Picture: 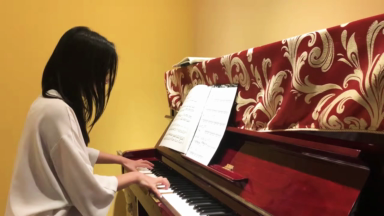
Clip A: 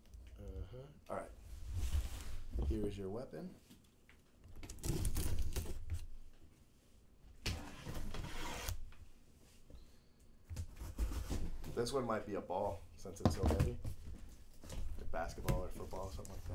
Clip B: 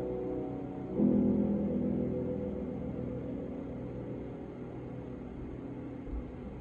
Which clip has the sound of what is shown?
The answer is B